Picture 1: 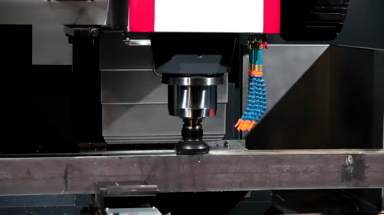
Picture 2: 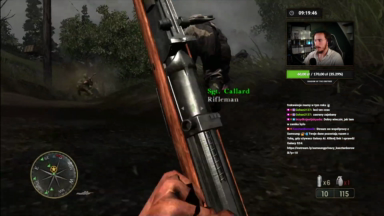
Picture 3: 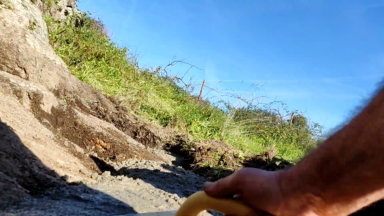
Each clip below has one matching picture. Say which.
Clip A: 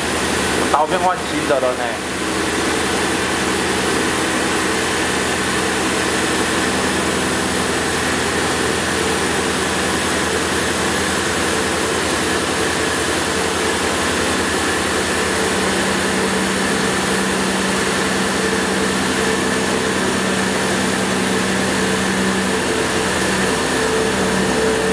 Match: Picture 1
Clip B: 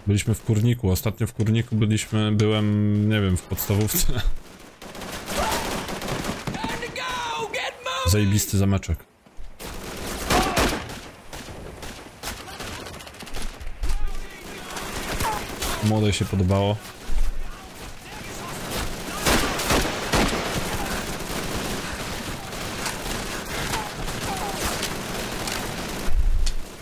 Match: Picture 2